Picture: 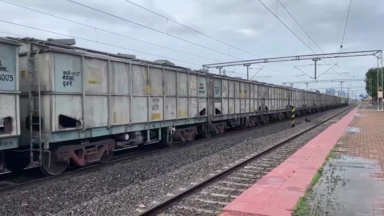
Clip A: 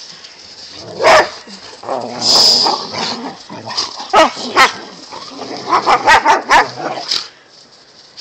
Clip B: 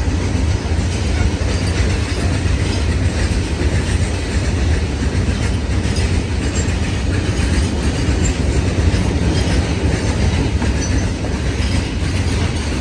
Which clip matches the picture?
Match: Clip B